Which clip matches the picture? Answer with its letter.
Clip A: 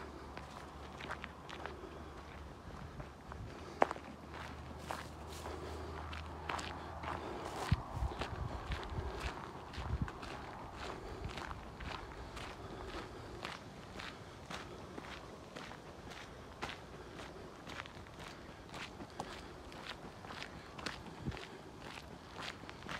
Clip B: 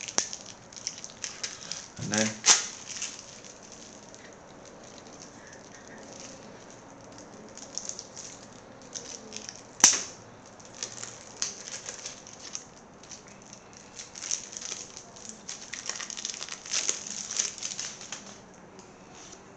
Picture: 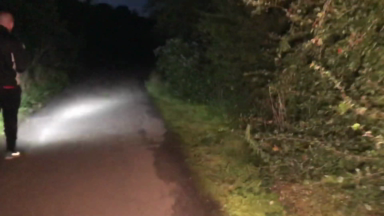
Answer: A